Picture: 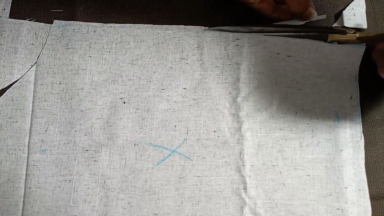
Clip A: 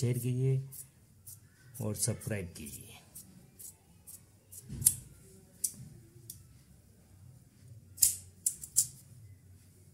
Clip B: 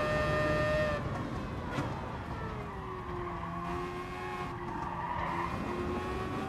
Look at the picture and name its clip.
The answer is A